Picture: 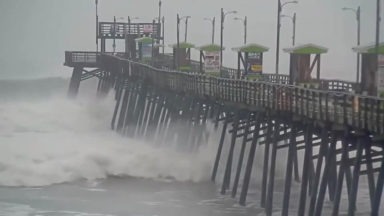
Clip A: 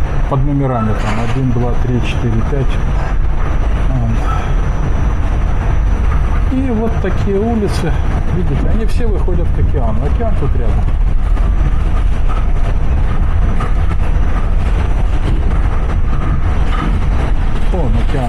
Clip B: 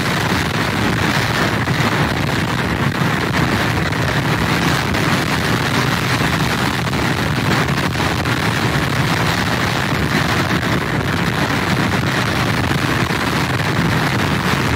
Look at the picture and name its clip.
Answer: B